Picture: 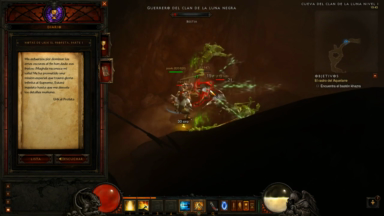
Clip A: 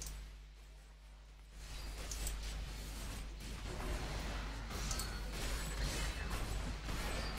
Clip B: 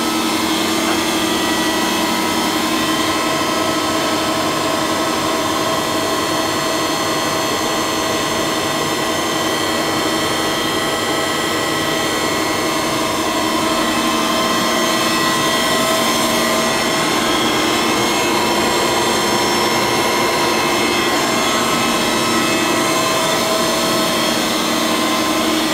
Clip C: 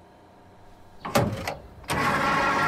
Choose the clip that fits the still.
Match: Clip A